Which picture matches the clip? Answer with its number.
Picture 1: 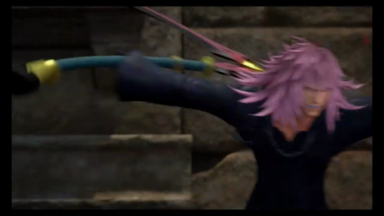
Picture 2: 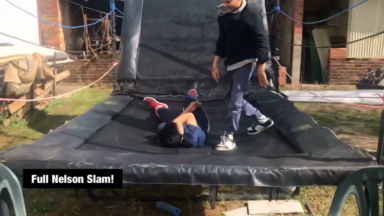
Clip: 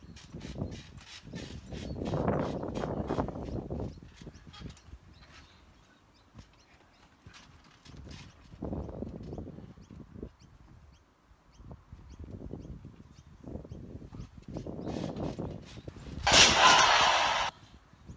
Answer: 2